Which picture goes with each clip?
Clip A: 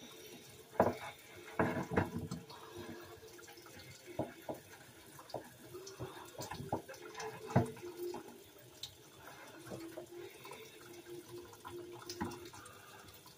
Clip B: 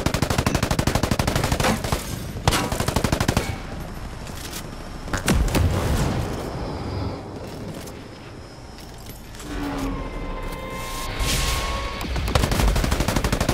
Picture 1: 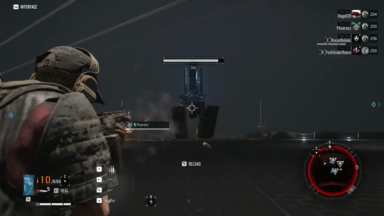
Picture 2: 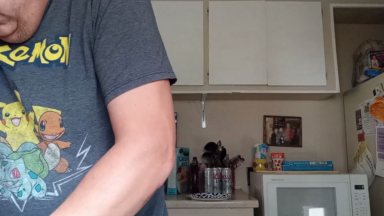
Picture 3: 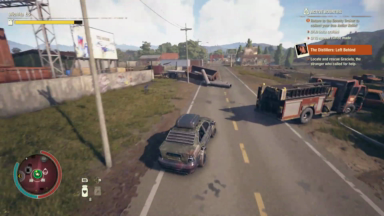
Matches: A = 2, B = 1